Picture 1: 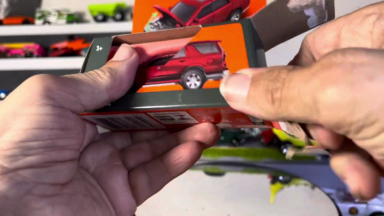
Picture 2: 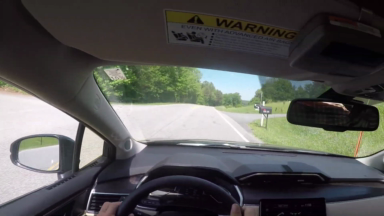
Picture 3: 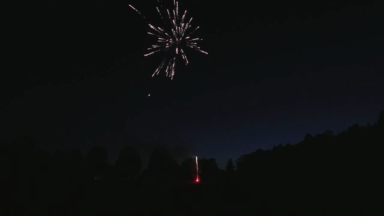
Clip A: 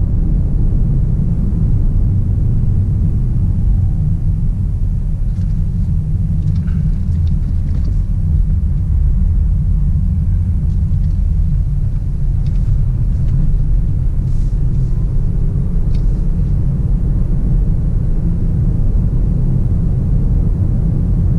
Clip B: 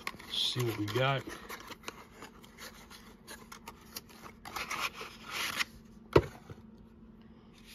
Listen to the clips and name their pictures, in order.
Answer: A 2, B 1